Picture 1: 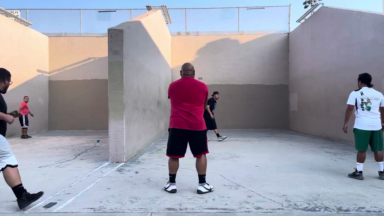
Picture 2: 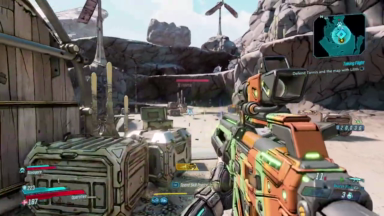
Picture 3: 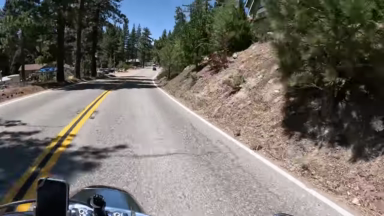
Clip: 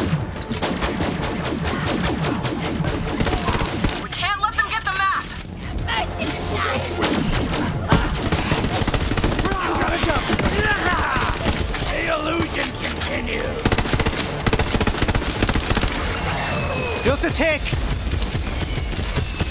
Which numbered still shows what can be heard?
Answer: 2